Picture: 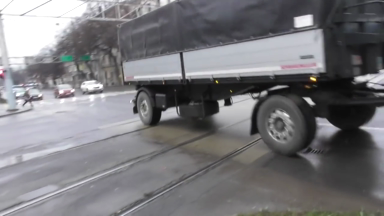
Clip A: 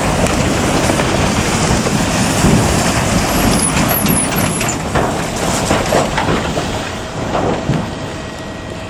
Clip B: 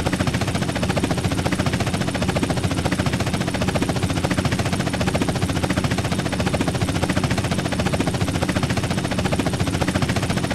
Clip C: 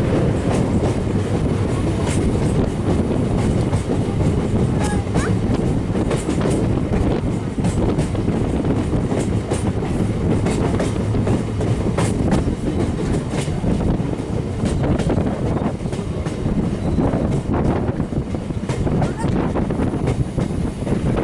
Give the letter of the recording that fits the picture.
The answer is A